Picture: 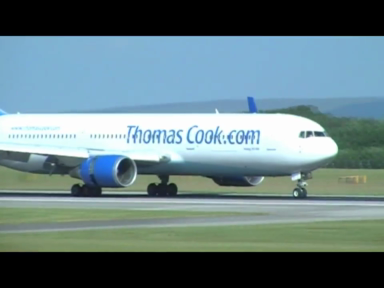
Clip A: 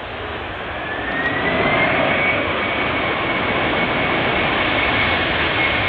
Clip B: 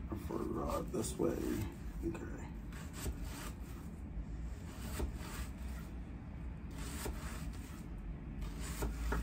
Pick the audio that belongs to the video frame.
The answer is A